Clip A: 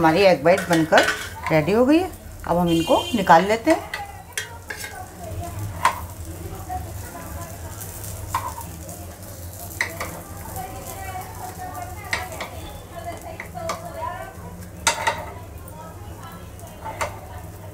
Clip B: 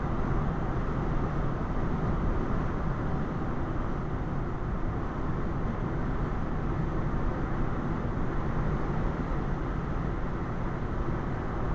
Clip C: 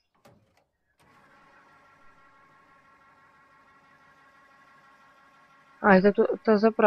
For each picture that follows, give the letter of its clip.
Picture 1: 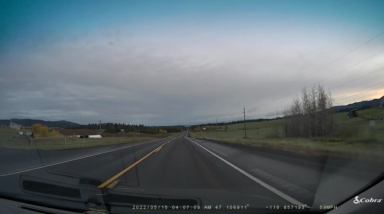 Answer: B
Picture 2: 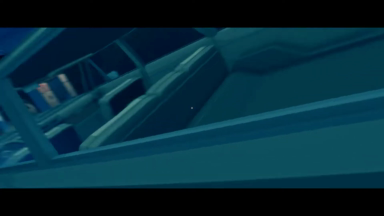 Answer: C